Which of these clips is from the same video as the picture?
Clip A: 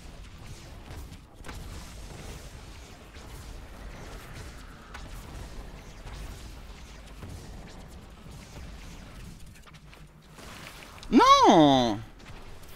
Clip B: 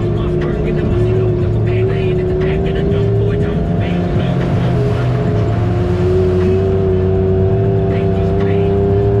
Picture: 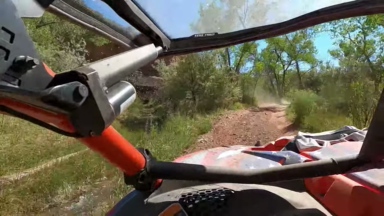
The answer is B